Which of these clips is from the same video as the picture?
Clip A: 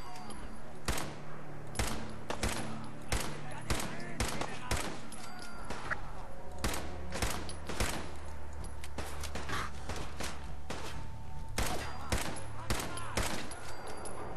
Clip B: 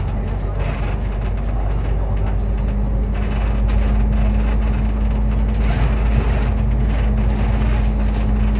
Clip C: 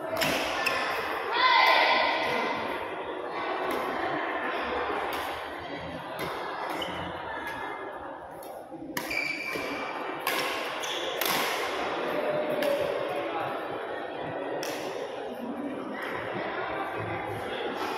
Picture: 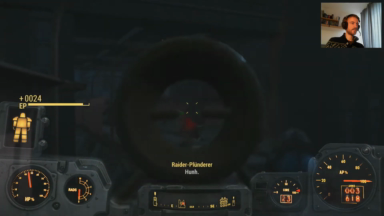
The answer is A